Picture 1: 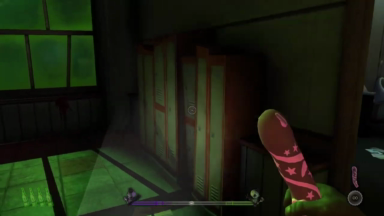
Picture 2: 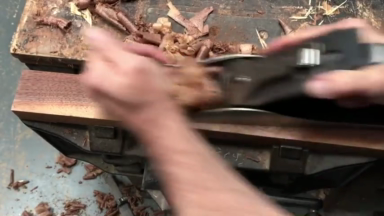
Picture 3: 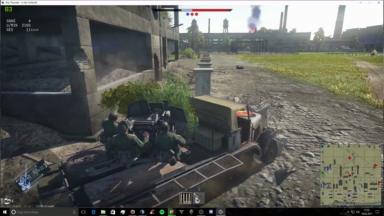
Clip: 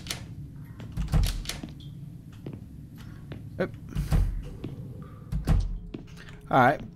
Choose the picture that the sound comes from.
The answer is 1